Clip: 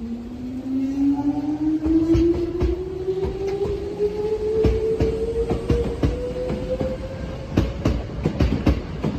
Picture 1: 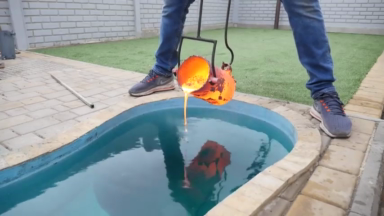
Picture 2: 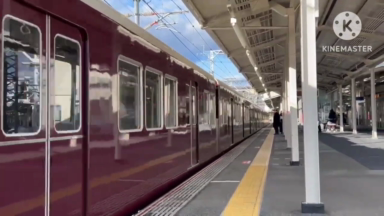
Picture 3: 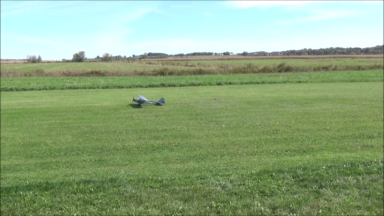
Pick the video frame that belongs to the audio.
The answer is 2